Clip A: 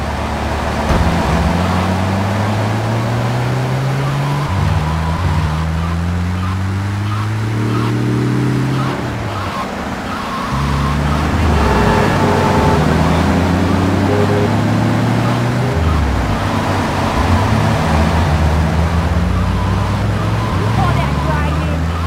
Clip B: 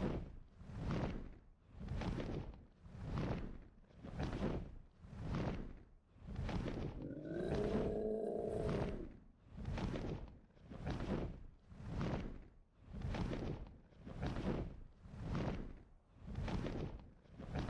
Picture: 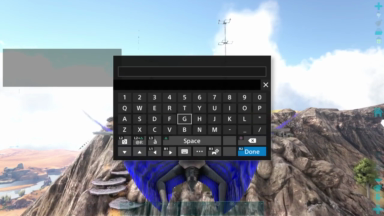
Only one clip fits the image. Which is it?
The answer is B